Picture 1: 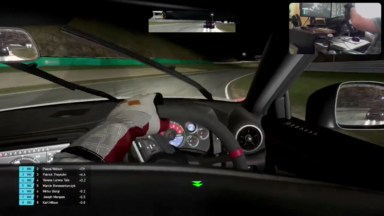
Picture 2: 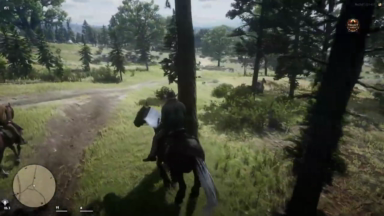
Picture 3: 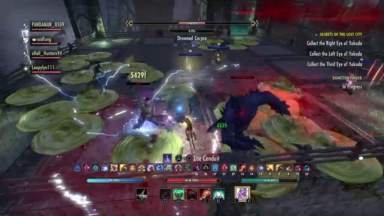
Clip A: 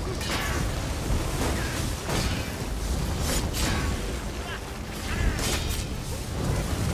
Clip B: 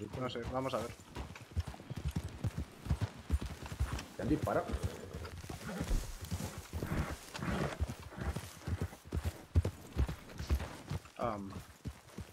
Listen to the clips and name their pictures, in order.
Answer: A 3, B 2